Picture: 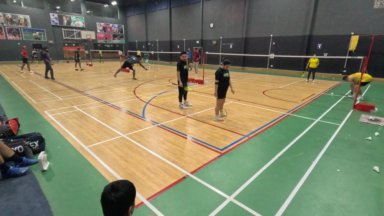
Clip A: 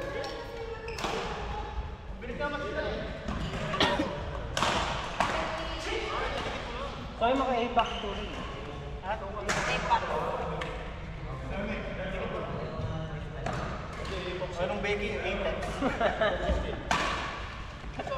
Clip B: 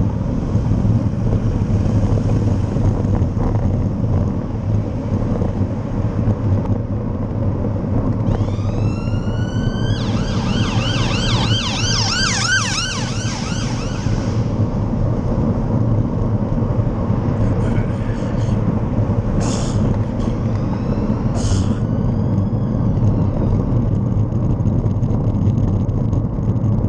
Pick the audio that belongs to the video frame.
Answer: A